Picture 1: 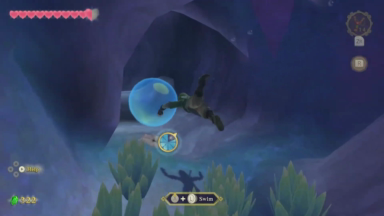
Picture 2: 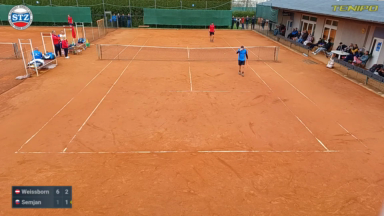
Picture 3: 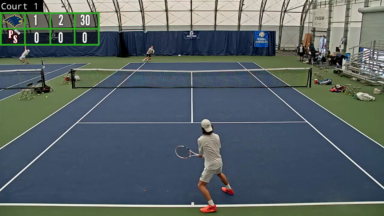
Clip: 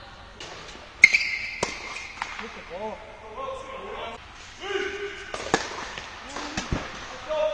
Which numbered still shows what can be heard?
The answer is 3